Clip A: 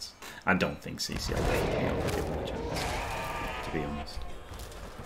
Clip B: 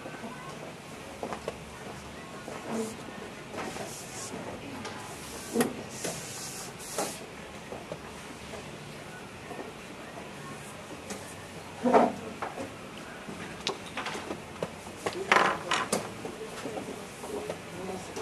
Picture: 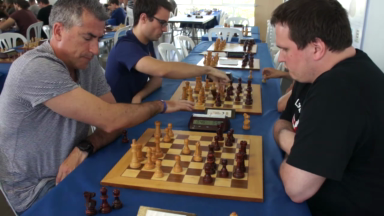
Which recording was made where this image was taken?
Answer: B